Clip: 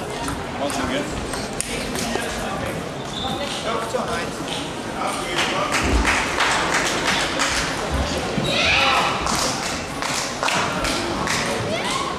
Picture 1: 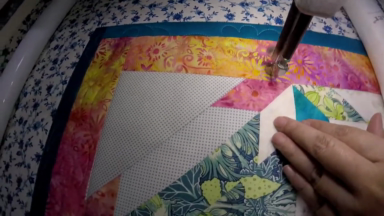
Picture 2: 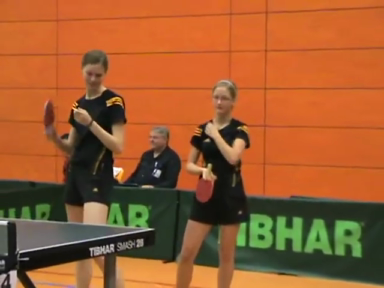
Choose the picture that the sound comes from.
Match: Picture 2